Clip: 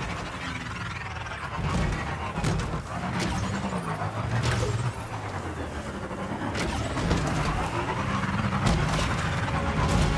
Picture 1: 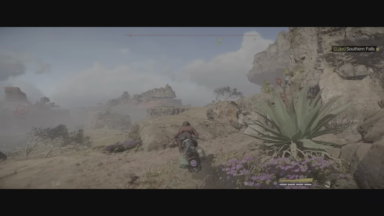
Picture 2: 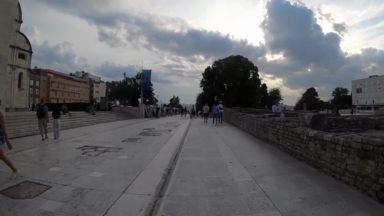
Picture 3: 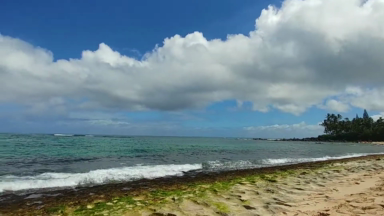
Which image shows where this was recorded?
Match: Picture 1